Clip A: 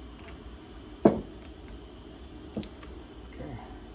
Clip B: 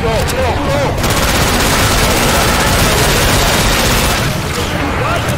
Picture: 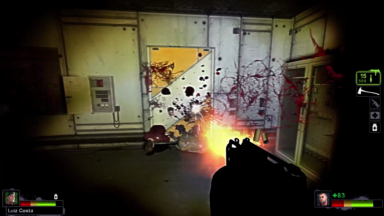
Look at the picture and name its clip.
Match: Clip B